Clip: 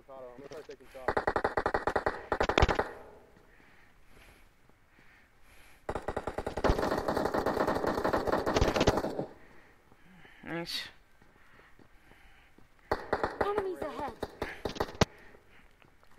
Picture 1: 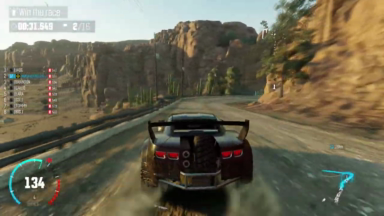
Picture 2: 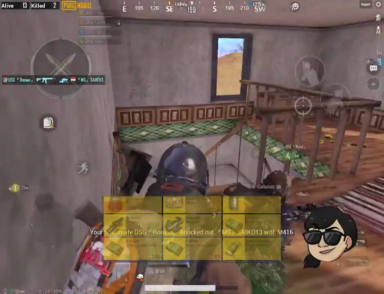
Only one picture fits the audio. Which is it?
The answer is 2